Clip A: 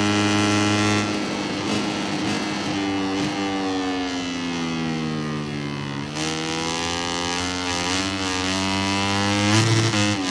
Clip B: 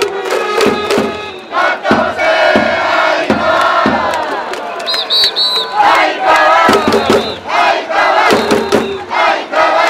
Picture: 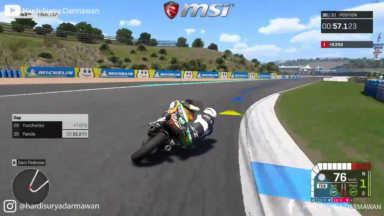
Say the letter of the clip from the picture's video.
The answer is A